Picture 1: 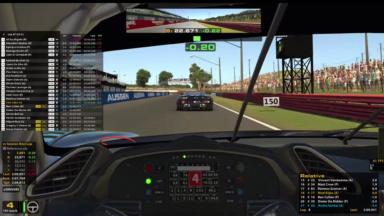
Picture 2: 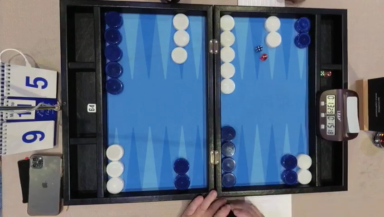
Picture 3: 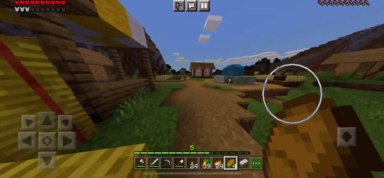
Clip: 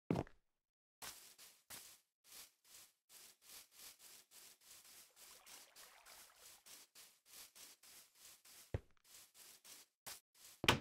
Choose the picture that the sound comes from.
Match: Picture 3